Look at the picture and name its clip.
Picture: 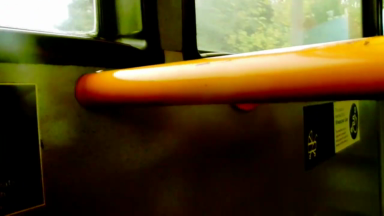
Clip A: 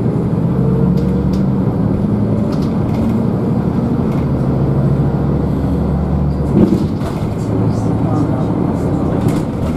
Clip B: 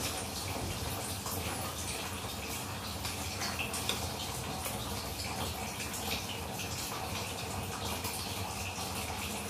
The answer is A